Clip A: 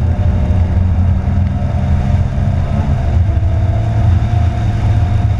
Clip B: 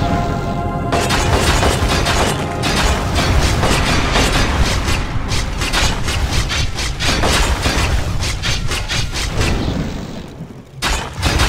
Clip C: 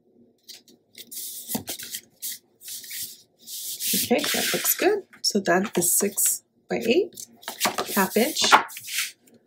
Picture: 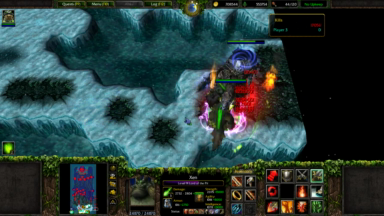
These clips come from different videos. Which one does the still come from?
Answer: B